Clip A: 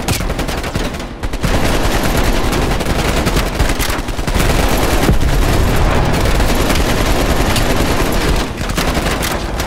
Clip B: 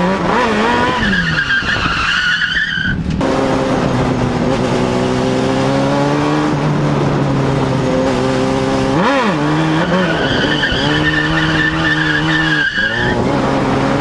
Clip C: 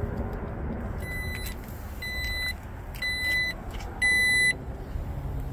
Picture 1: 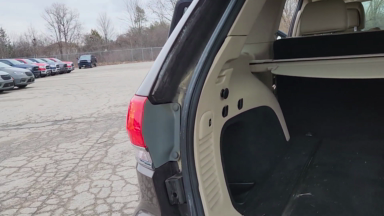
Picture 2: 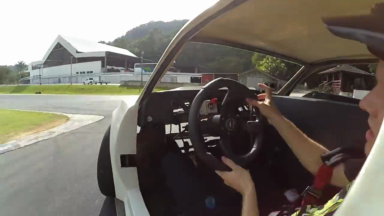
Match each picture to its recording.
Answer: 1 C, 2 B